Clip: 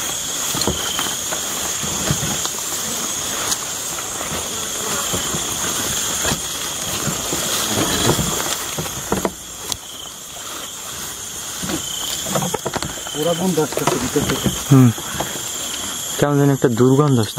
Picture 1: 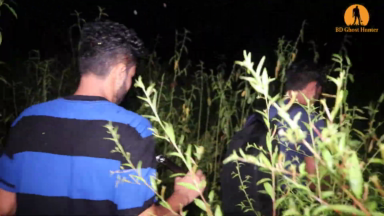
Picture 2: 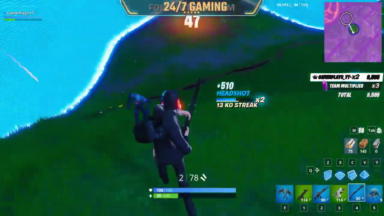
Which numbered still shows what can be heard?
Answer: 1